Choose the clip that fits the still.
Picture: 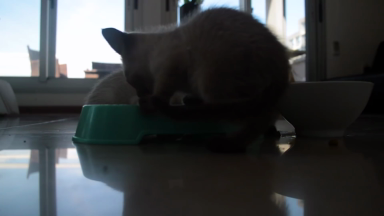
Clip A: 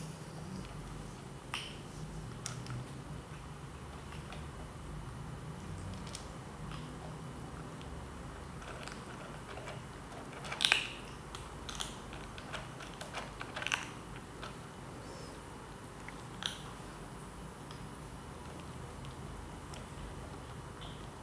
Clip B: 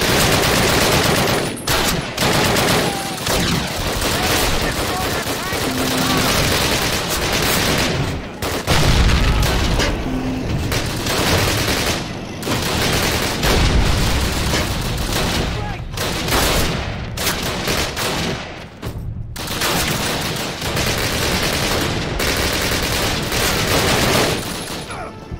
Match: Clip A